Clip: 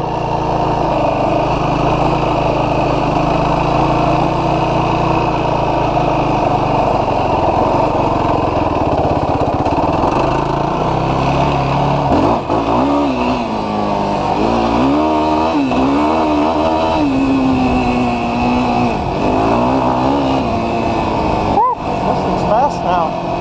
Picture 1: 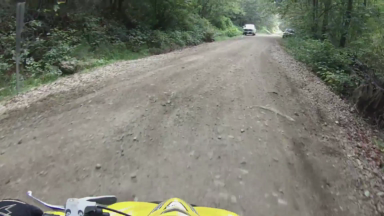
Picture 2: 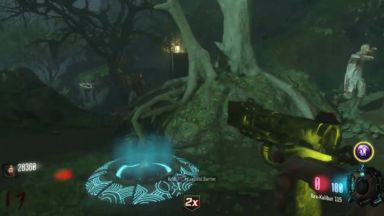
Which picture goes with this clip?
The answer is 1